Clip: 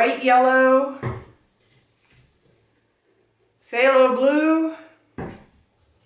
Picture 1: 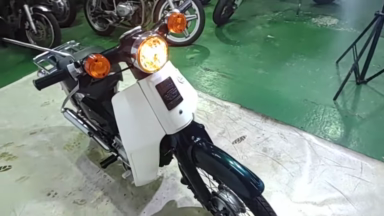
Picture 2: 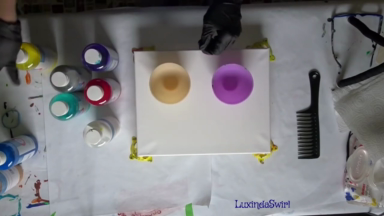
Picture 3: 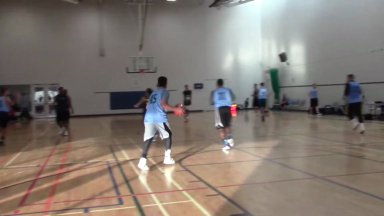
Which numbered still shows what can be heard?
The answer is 2